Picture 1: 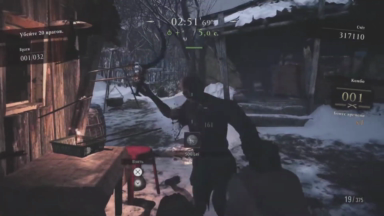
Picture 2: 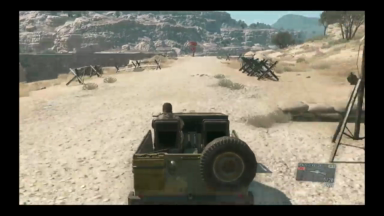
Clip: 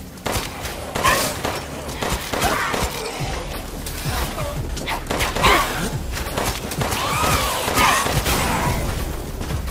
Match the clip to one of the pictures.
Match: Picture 1